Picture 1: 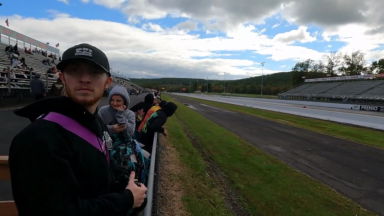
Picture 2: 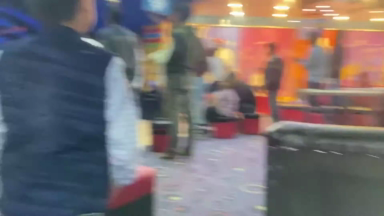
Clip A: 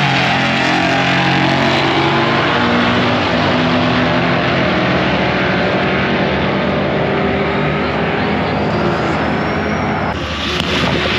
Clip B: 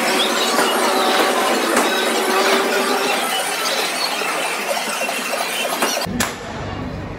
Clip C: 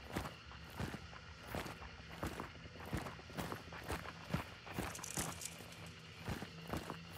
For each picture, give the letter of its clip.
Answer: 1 A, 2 B